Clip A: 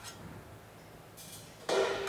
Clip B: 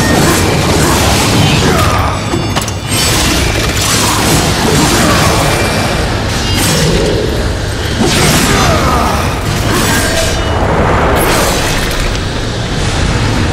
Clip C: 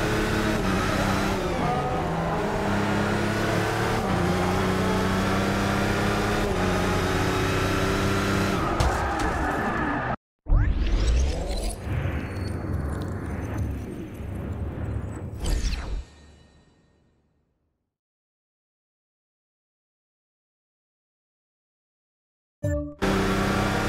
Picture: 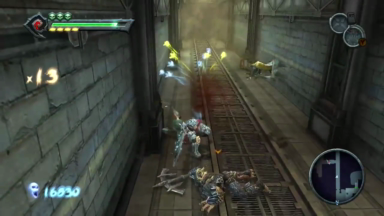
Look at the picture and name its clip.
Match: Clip B